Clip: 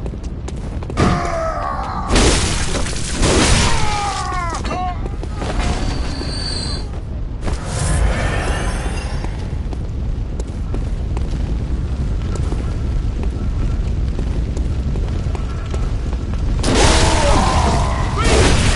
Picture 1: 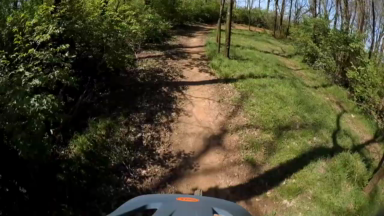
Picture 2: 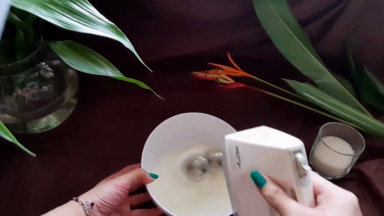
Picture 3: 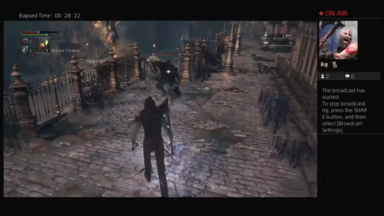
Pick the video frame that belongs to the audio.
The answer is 3